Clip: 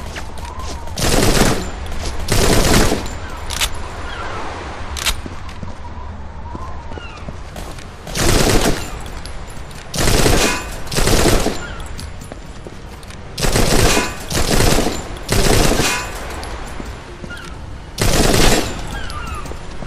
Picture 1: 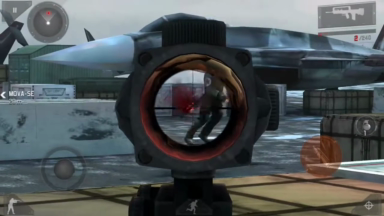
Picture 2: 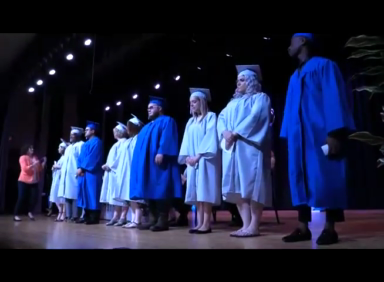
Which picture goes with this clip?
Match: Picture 1